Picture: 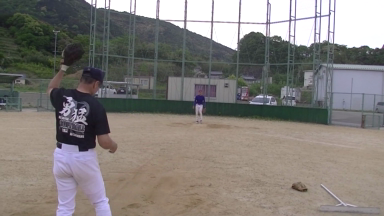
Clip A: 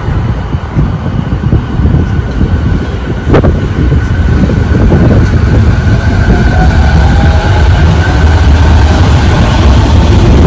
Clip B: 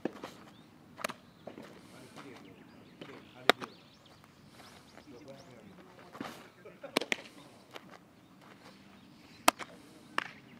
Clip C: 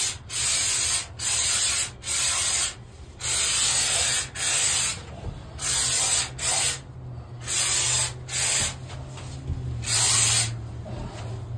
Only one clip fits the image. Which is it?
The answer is B